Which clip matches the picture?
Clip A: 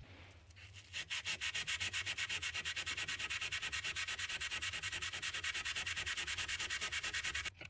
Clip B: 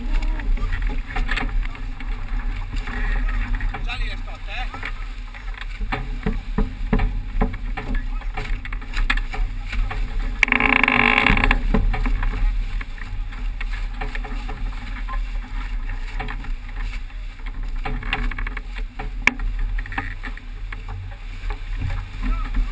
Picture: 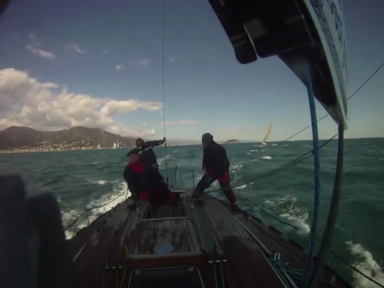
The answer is B